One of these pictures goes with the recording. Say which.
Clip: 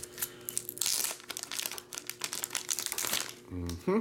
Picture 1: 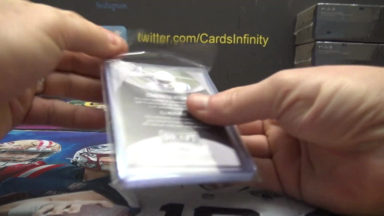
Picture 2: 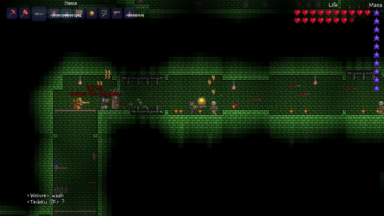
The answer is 1